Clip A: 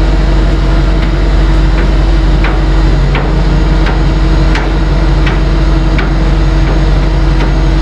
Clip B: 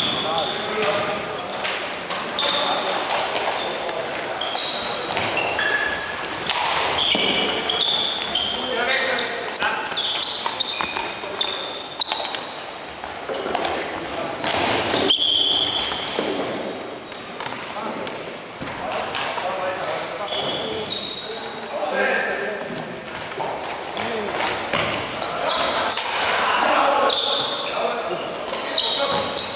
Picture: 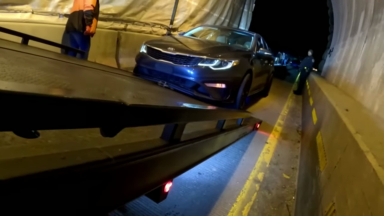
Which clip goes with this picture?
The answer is A